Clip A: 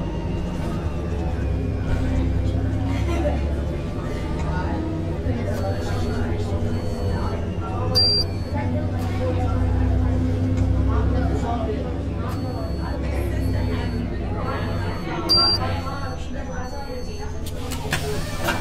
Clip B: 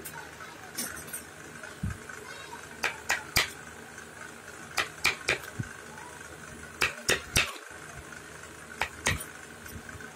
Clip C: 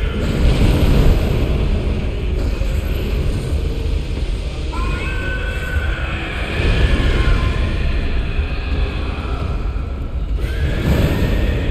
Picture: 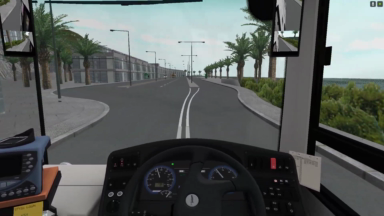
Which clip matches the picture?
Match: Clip A